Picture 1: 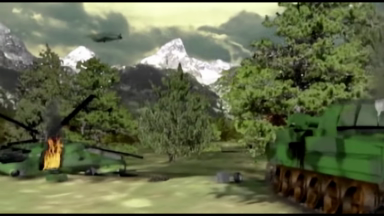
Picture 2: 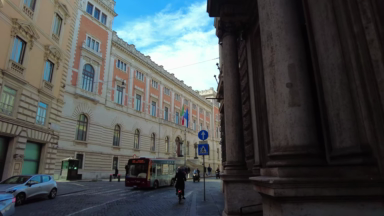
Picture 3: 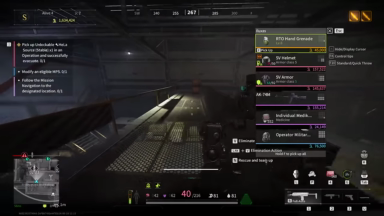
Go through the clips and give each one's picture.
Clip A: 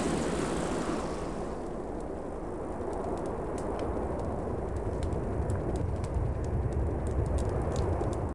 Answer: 1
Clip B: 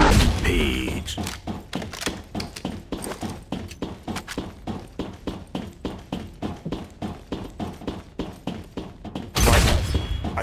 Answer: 3